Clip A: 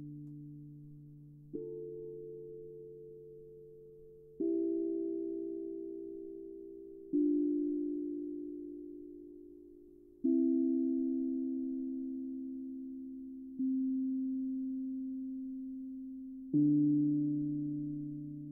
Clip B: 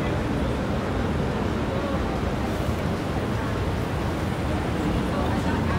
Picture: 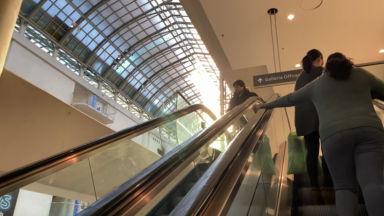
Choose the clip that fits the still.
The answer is B